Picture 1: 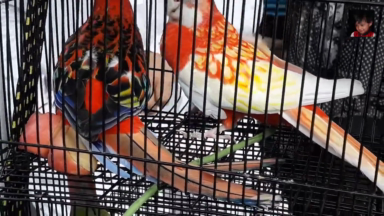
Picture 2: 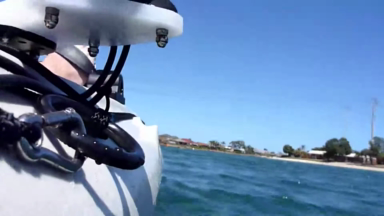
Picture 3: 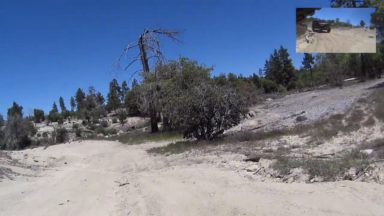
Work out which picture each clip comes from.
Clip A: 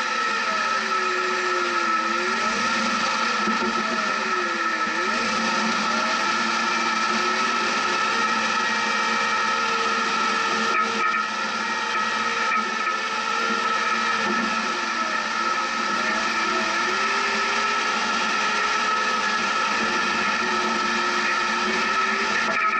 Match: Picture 3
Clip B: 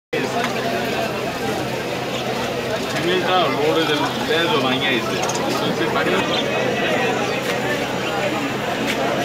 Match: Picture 1